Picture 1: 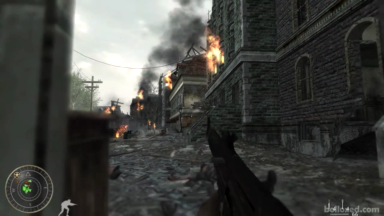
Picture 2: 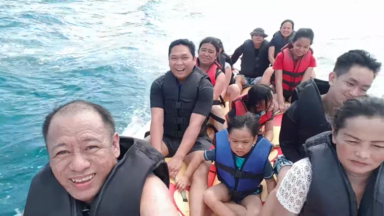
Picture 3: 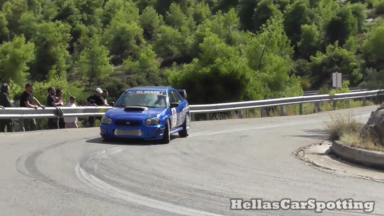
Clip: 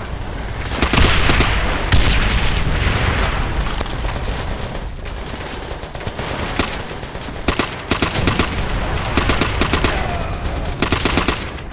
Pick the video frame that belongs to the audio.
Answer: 1